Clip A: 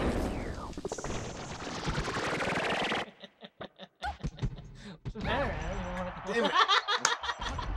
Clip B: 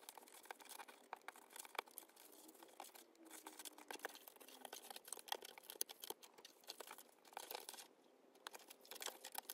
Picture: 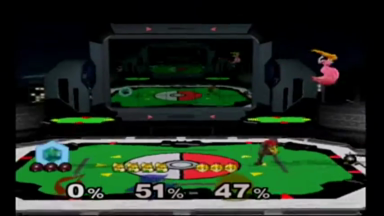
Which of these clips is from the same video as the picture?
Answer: A